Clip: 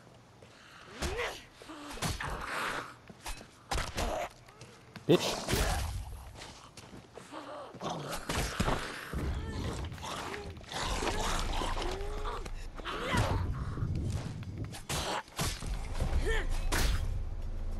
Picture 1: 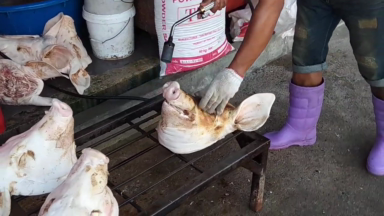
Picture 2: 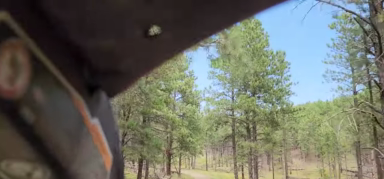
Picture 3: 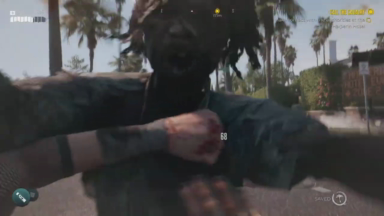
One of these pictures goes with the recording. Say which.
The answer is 3